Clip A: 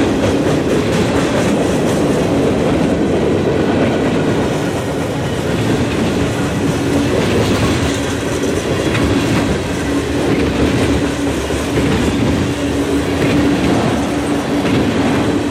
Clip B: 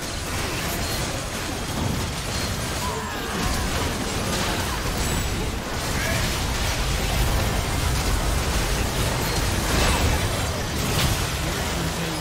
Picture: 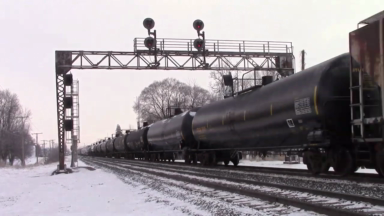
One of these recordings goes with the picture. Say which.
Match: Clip A